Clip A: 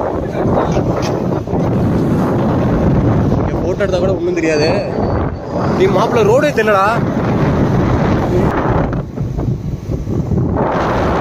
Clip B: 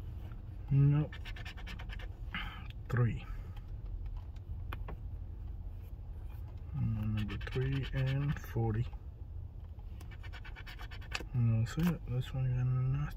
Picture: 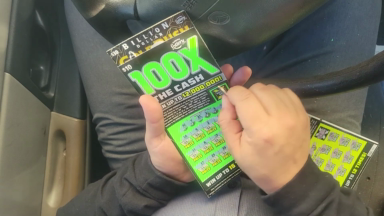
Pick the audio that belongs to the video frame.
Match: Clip B